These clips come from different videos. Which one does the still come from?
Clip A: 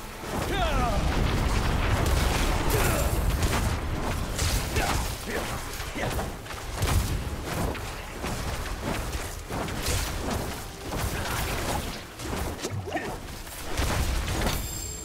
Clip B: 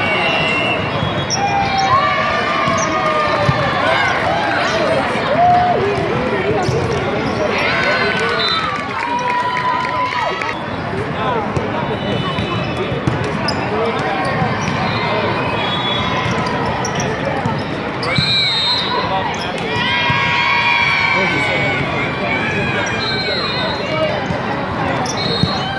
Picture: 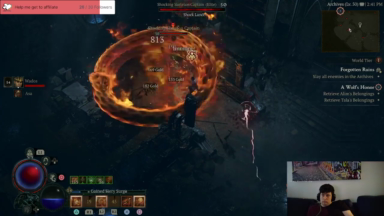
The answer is A